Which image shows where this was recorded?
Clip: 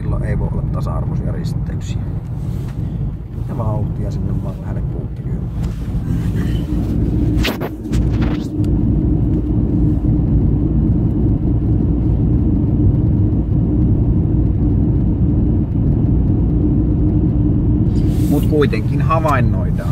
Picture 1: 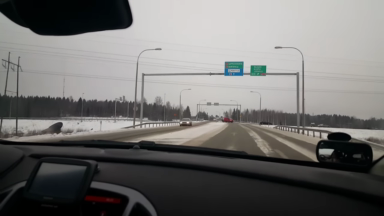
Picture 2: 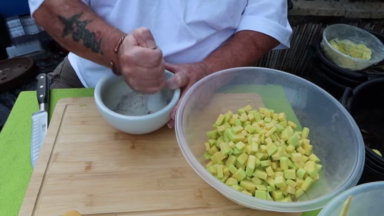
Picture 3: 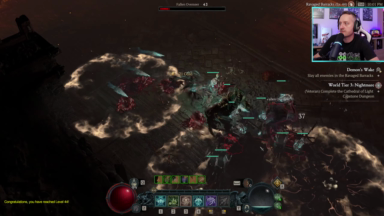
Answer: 1